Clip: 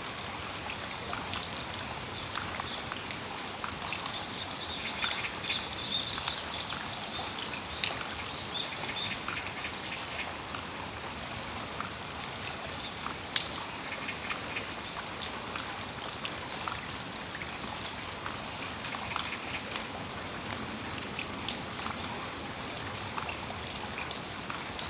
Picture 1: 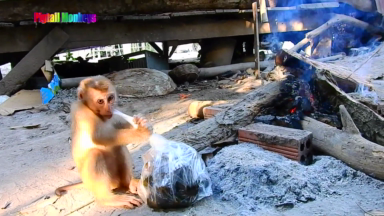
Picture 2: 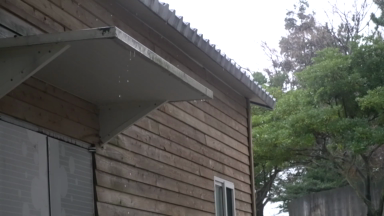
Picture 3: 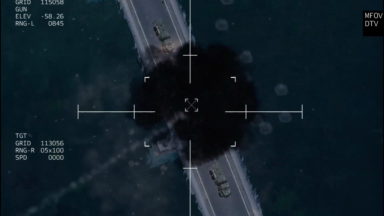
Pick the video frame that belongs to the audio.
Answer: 2